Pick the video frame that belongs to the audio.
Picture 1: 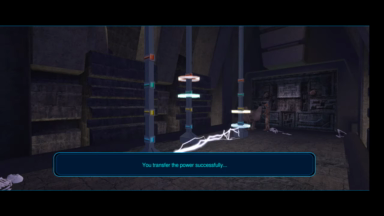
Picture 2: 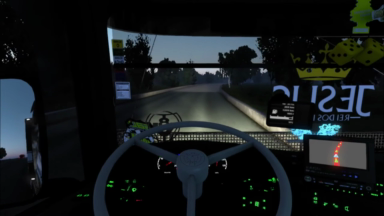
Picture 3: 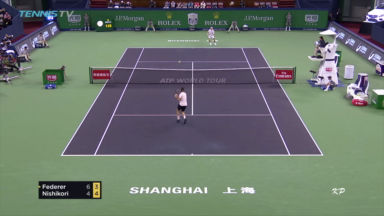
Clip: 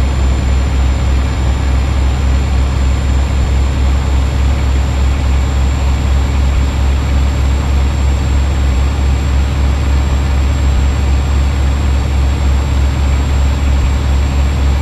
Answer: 2